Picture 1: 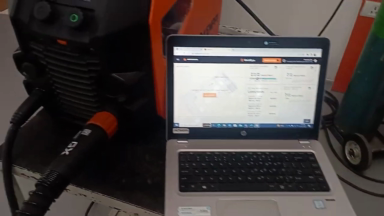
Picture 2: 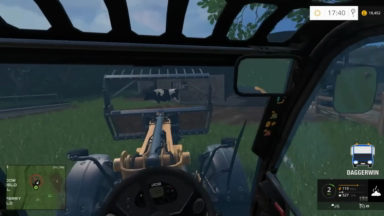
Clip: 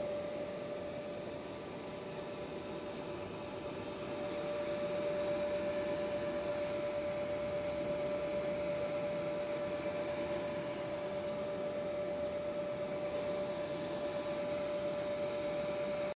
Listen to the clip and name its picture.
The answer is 1